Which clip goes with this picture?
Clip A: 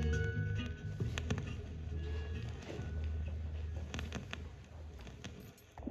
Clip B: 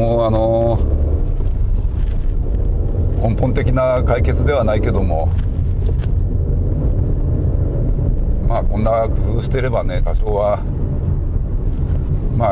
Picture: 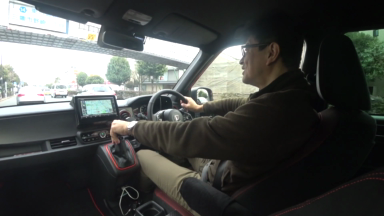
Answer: B